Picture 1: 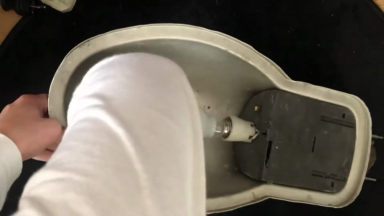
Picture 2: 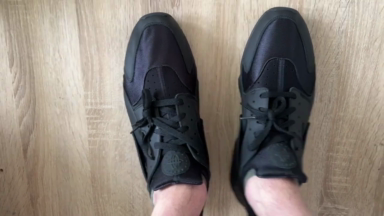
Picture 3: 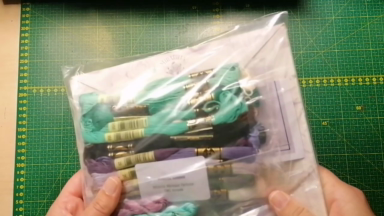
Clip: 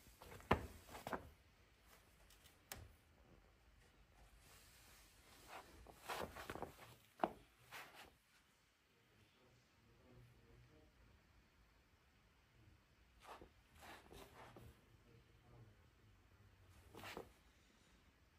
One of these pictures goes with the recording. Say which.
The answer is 2